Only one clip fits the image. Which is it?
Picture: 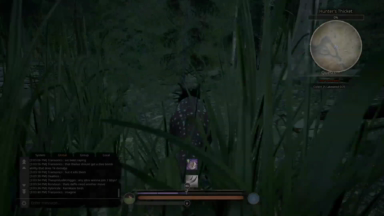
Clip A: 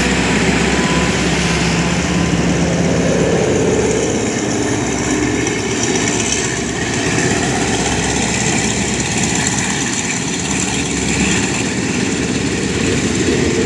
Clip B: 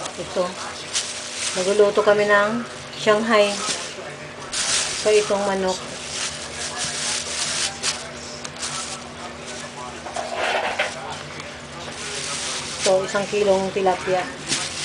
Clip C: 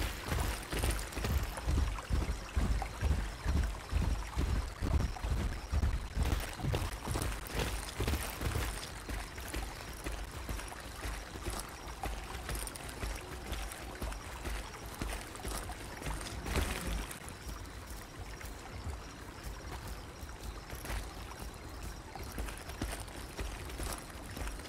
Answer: C